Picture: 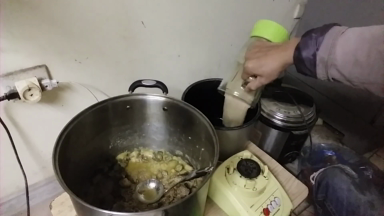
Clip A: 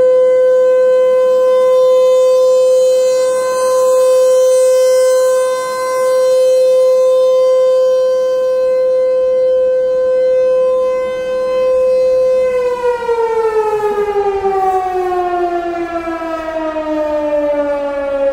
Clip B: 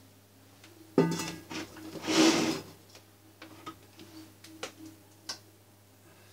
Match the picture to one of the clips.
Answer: B